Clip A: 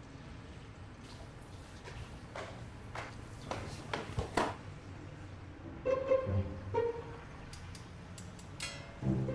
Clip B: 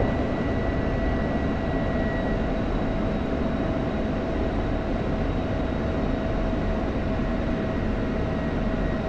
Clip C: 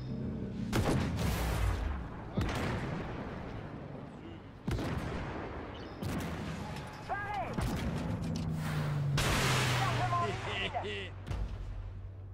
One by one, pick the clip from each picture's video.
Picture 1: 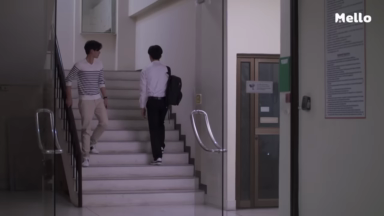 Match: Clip A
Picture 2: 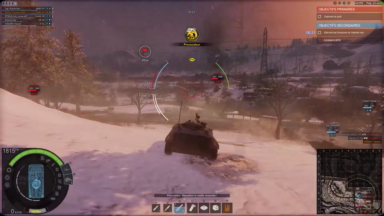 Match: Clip C